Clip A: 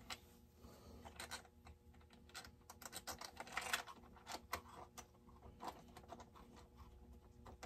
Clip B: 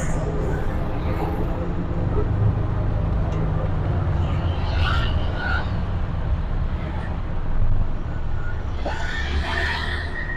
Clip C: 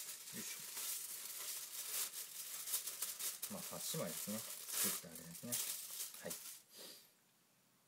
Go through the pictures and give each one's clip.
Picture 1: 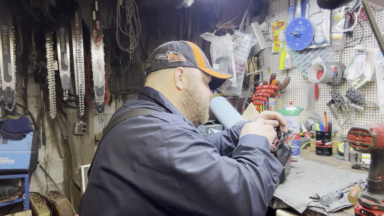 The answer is A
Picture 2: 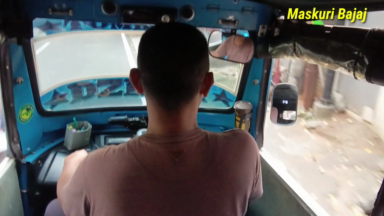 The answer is B